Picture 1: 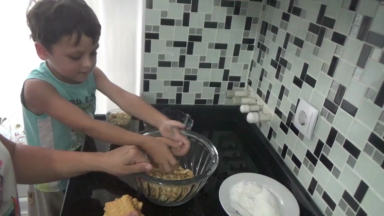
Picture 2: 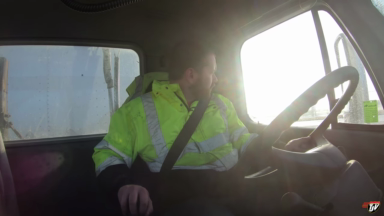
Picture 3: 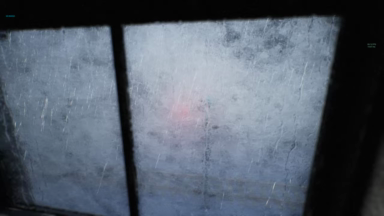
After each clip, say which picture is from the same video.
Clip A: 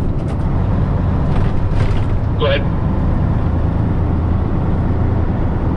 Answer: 2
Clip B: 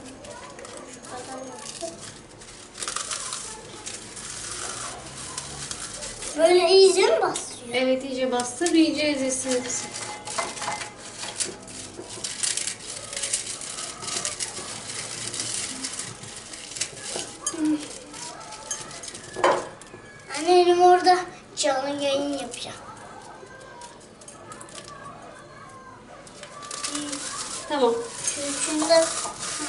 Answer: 1